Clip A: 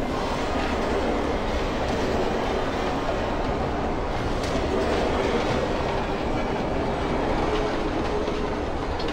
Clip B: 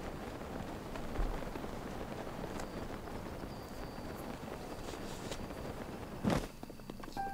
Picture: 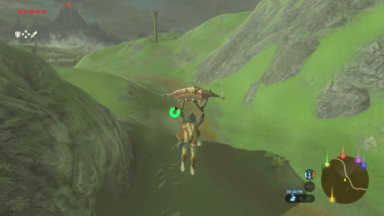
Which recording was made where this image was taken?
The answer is B